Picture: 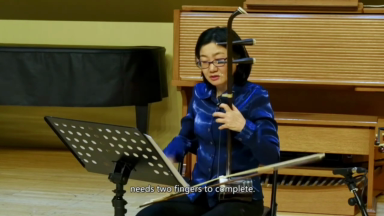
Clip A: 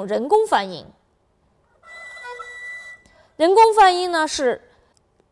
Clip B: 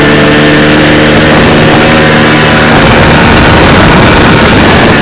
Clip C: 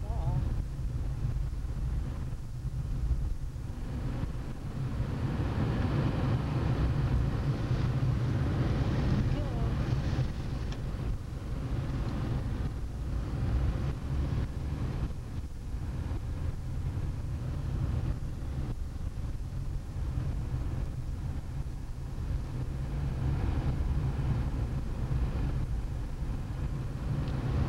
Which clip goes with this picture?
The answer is A